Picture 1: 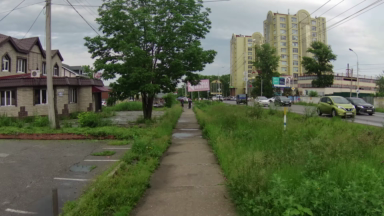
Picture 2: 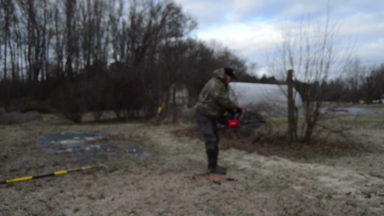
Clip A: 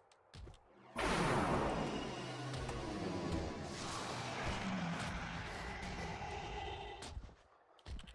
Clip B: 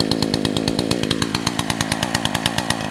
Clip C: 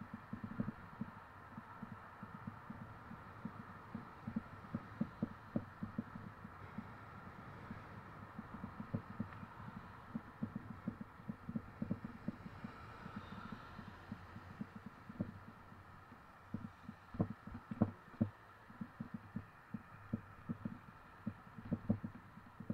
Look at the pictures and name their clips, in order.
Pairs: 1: C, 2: B